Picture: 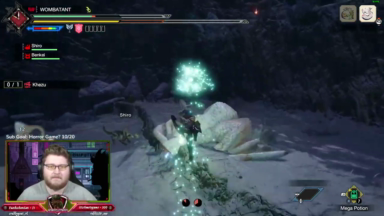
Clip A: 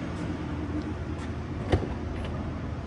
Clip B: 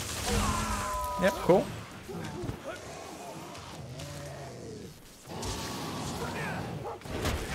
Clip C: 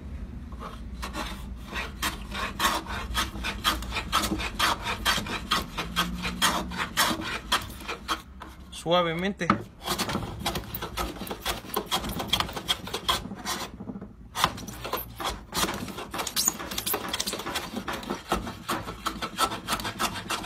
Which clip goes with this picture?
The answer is B